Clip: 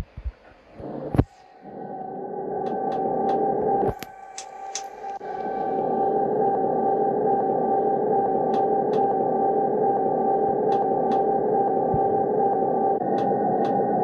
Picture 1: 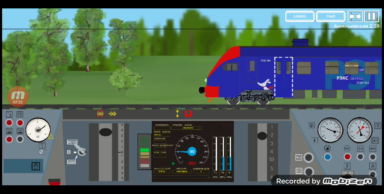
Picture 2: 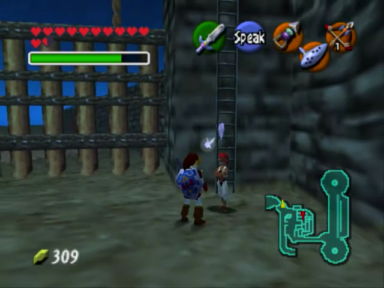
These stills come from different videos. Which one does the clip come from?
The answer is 1